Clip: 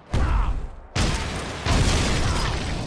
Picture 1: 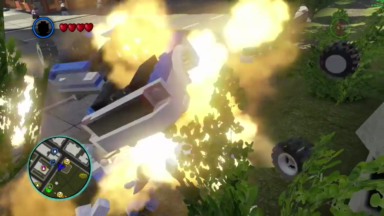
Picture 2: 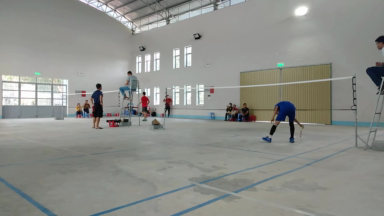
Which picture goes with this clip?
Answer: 1